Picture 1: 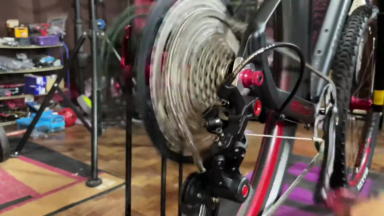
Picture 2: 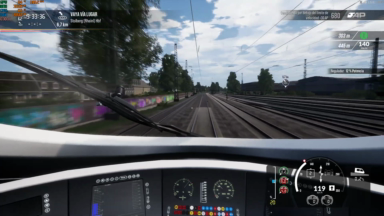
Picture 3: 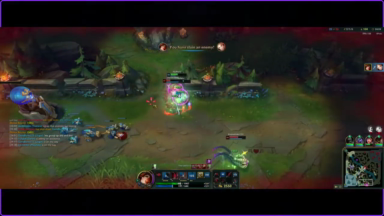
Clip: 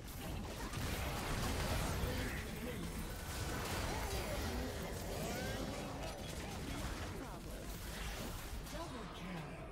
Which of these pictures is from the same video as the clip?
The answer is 3